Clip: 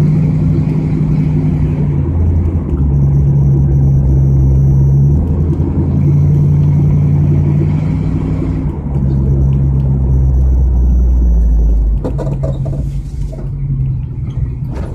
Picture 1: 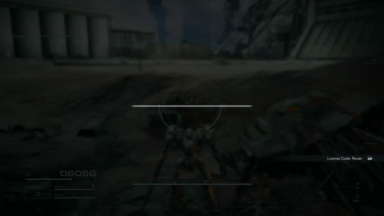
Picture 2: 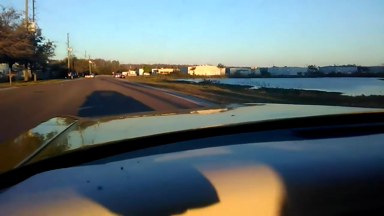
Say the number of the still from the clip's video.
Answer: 2